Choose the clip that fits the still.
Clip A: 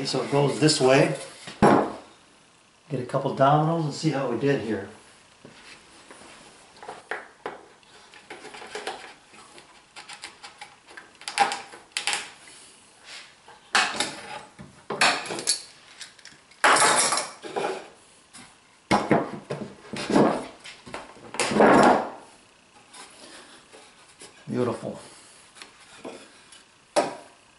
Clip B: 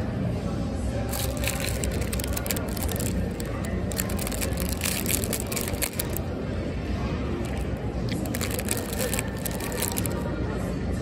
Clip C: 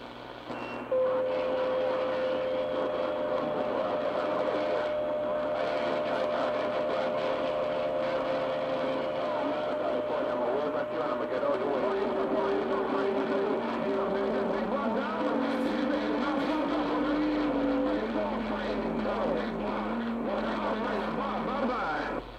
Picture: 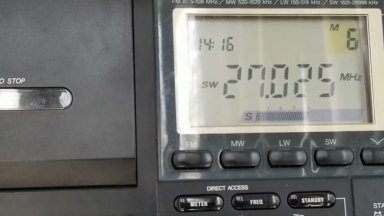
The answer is C